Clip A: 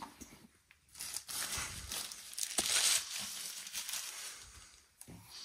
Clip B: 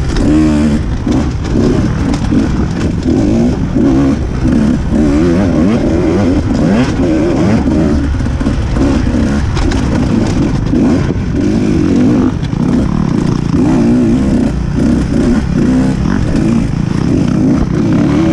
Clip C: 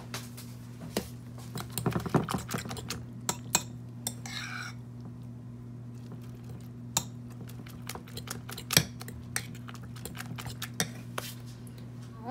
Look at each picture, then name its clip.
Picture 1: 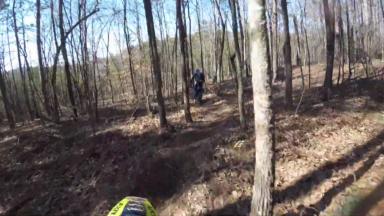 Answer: B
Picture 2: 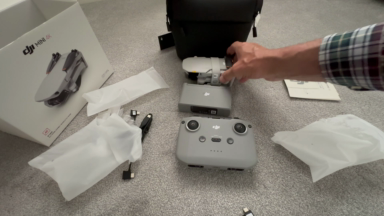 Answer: A